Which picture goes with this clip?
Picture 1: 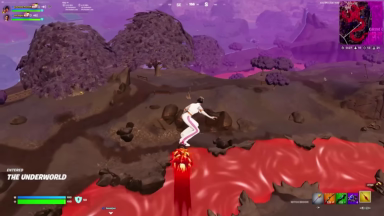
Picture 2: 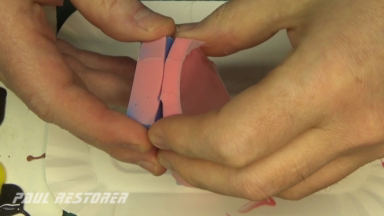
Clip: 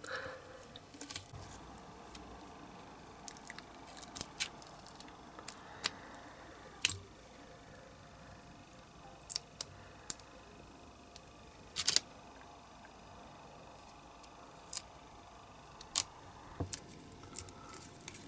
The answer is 2